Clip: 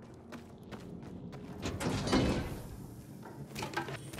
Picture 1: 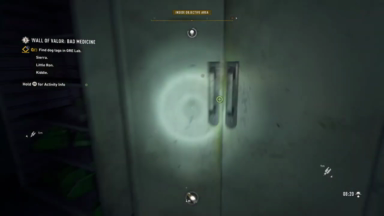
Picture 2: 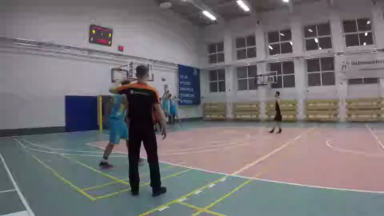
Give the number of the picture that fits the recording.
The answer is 1